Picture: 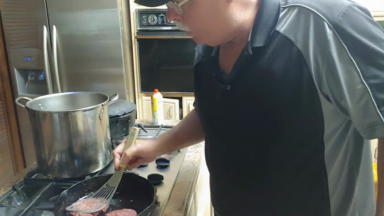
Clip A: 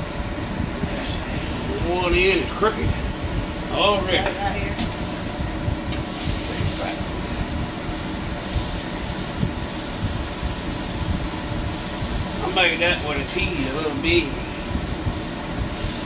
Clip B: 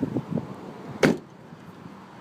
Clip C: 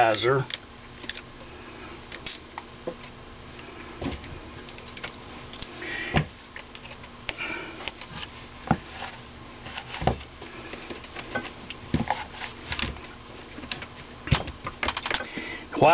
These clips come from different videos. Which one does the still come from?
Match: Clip A